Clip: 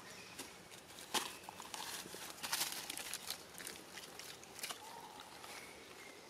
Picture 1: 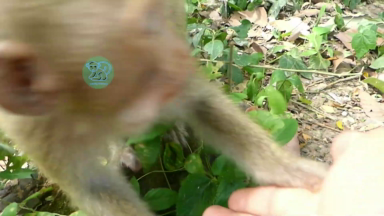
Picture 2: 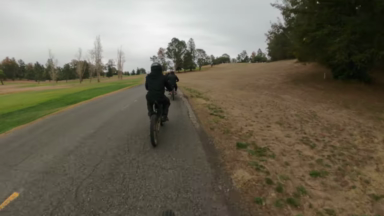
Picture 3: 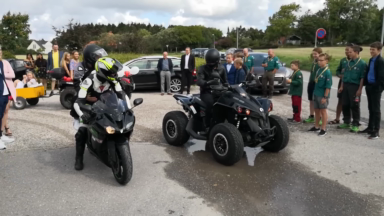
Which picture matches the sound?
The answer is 1